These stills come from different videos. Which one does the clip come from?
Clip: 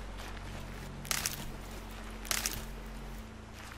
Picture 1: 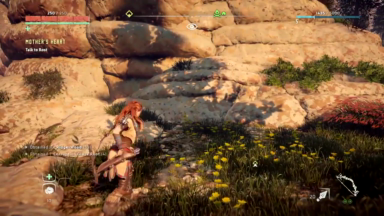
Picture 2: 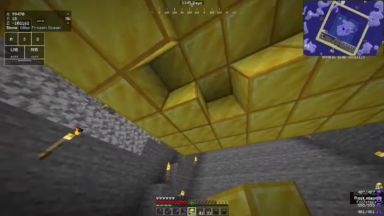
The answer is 1